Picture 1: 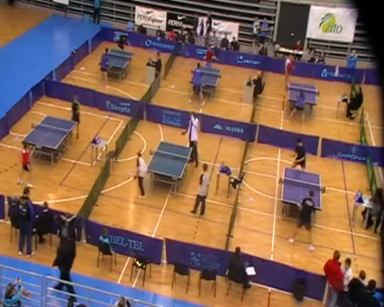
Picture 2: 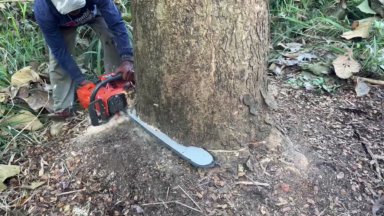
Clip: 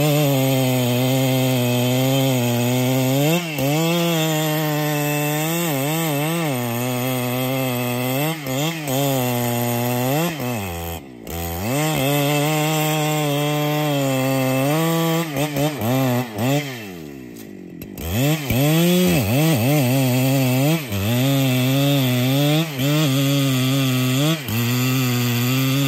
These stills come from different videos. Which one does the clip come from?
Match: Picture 2